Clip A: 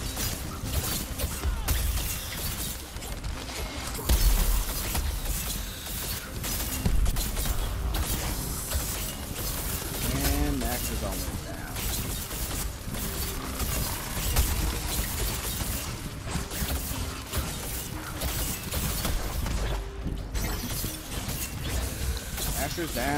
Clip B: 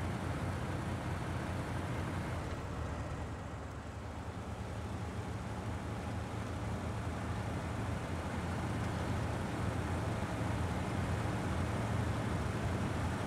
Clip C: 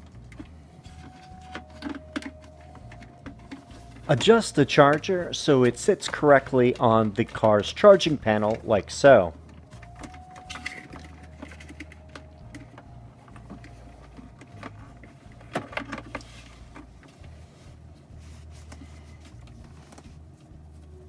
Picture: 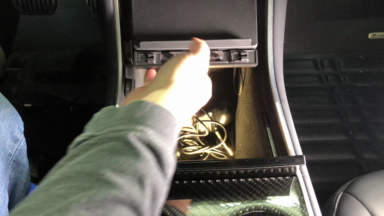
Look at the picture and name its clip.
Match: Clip C